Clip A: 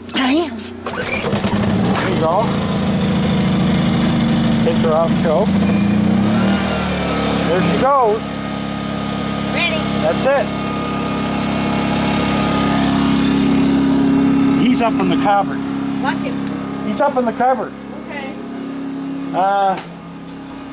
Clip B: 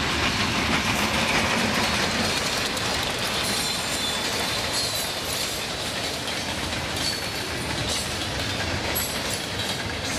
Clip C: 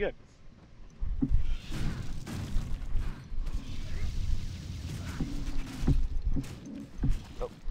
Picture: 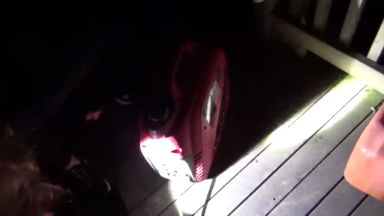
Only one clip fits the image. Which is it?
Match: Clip A